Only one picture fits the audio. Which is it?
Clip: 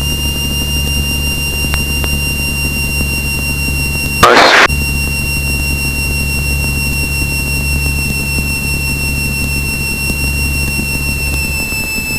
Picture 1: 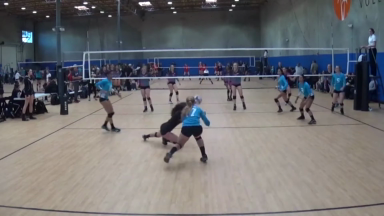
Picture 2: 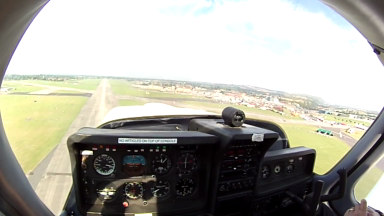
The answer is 2